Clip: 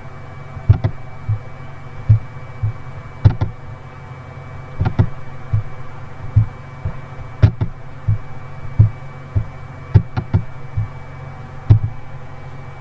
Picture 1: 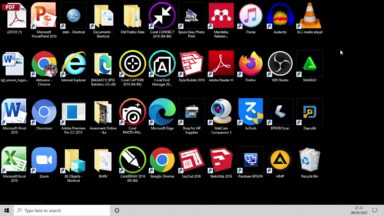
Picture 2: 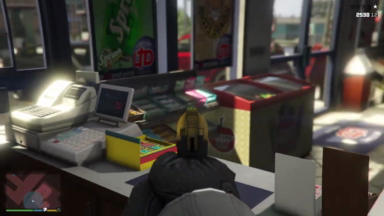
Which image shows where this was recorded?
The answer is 1